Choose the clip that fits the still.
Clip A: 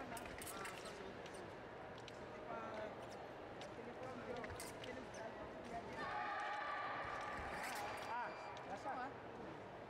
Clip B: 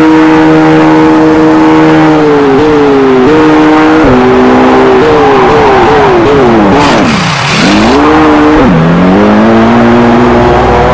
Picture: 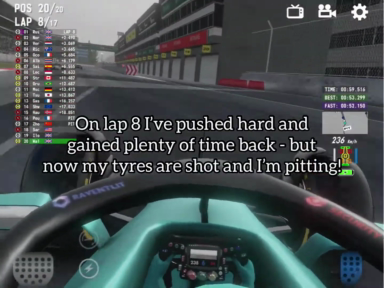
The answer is B